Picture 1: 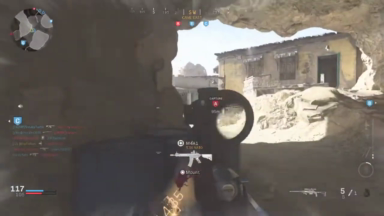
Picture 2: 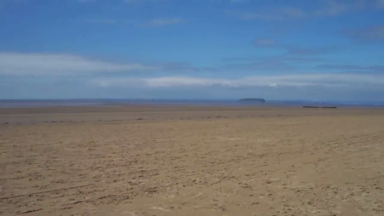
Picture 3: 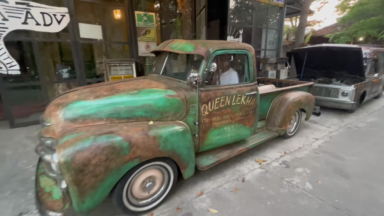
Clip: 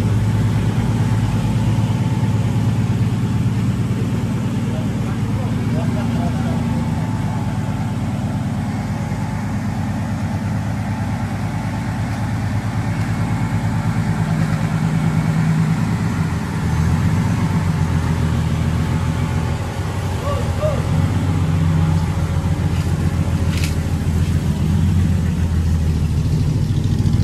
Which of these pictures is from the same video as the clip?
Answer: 3